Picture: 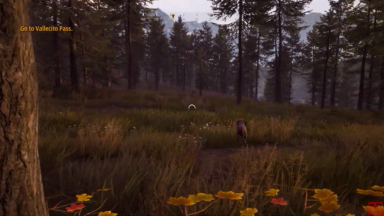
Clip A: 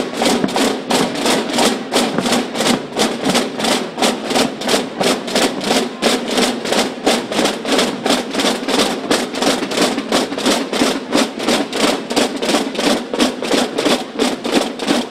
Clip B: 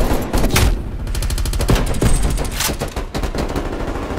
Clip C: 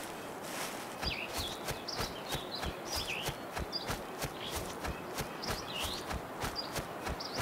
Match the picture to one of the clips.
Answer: C